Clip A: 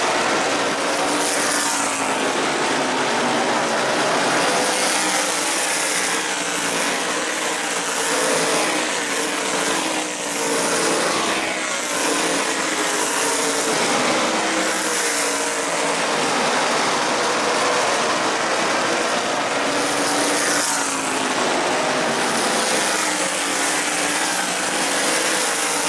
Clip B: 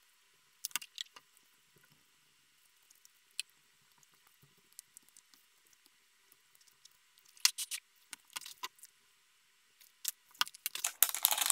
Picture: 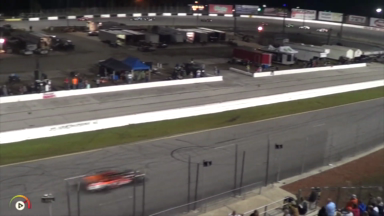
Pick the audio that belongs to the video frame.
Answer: A